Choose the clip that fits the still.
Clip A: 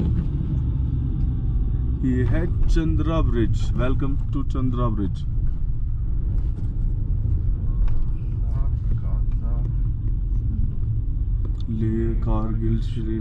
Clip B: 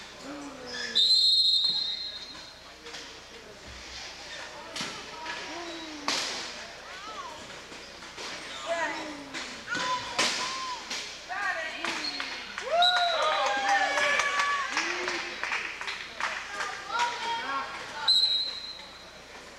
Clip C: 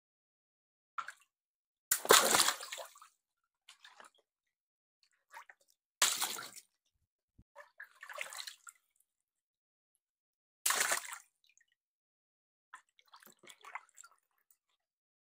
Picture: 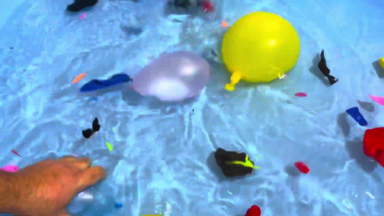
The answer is C